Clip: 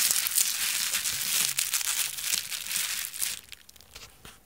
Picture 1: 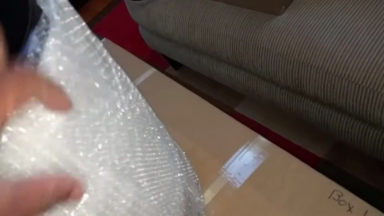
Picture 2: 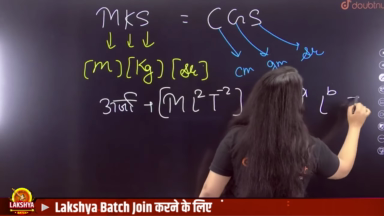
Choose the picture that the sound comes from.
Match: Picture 1